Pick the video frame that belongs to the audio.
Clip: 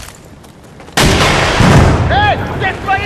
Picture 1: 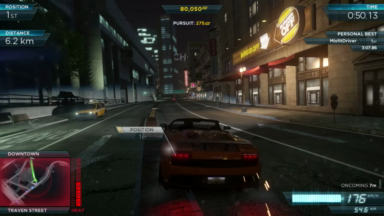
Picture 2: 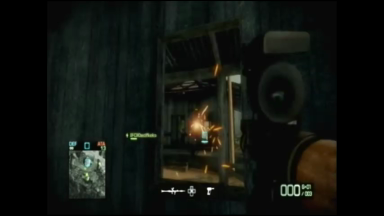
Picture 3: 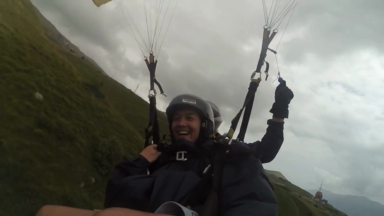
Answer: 2